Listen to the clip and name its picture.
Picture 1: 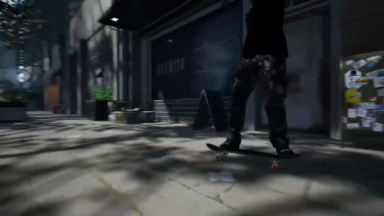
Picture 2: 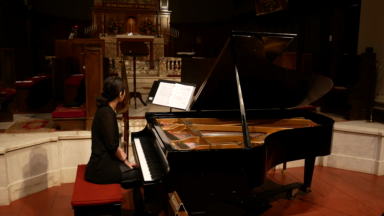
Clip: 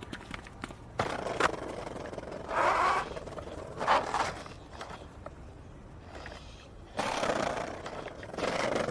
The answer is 1